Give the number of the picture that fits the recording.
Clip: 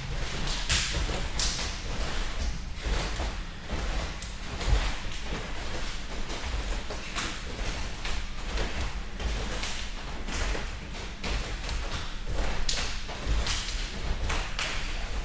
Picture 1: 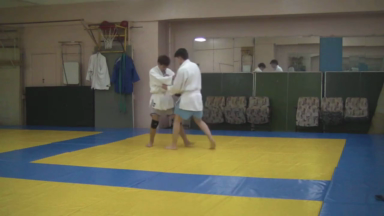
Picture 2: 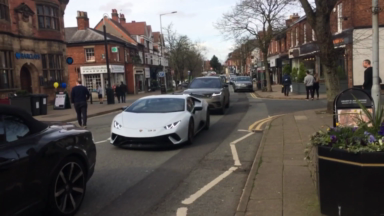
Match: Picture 1